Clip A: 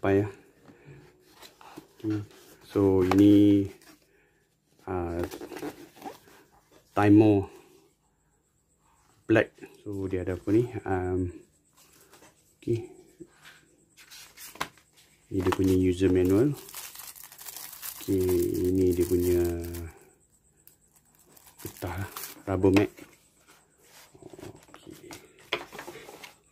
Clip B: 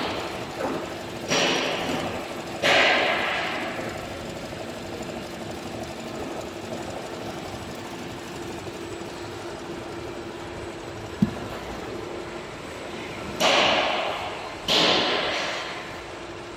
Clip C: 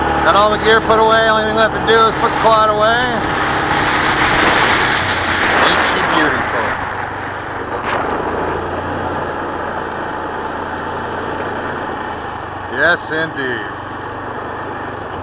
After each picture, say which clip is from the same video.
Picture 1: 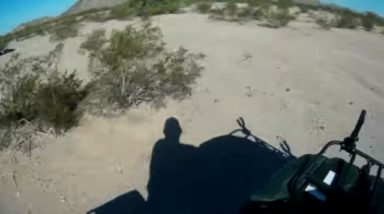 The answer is C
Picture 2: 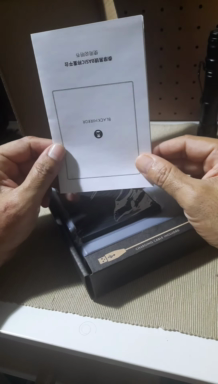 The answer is A